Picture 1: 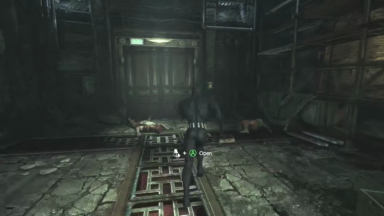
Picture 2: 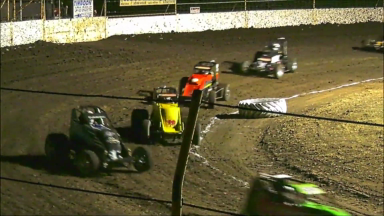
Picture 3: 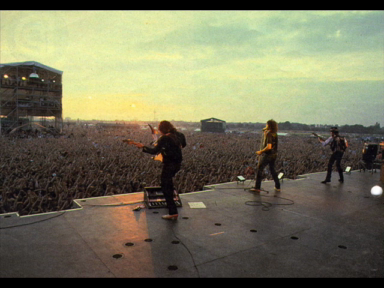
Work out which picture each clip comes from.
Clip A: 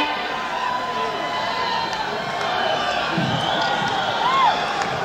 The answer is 3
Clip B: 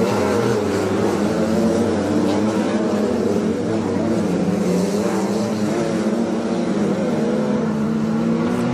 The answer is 2